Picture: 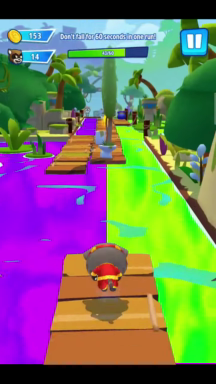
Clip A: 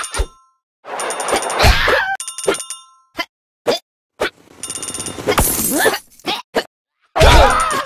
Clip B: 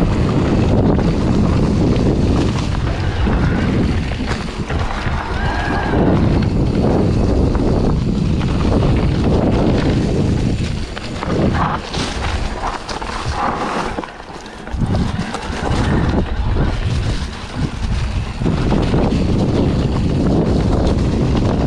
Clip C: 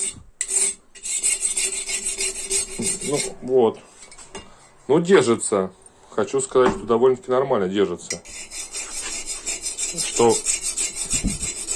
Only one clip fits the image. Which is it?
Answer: A